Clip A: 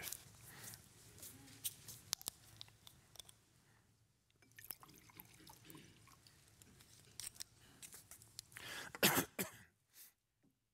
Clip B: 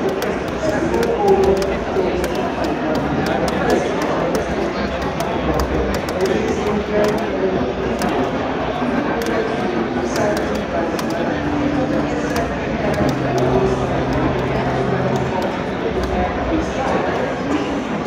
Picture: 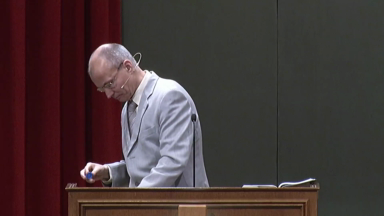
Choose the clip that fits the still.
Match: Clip A